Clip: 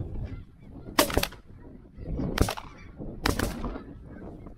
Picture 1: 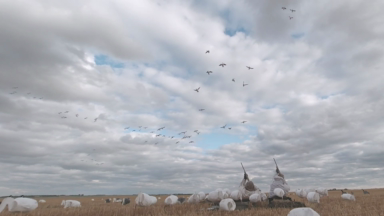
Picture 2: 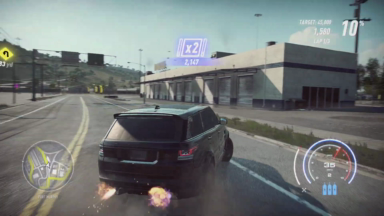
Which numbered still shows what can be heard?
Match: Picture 1